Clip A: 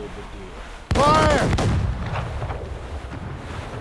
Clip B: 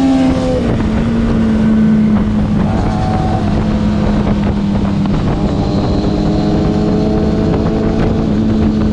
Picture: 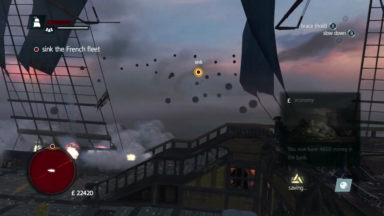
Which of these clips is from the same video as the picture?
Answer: A